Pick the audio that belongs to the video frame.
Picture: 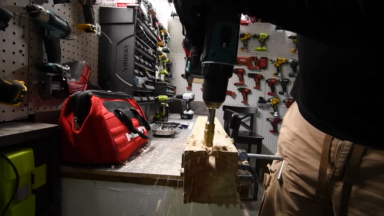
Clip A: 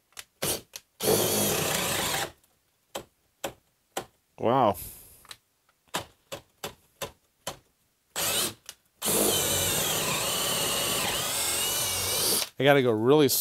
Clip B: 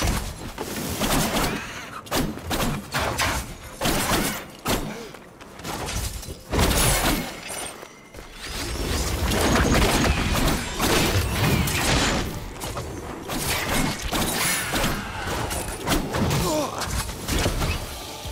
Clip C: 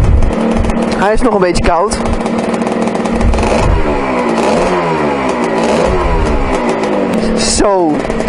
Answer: A